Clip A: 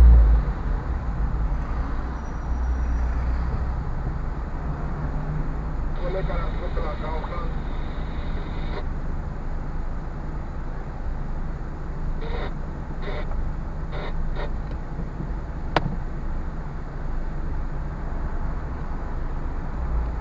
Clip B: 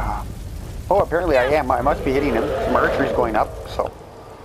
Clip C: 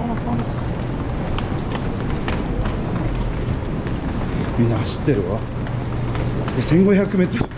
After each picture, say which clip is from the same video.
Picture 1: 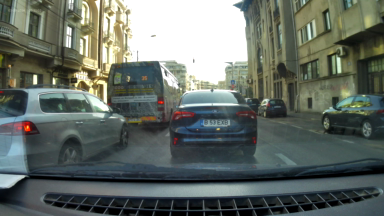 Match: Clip A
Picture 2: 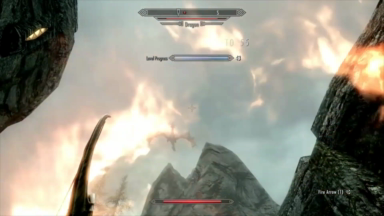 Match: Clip B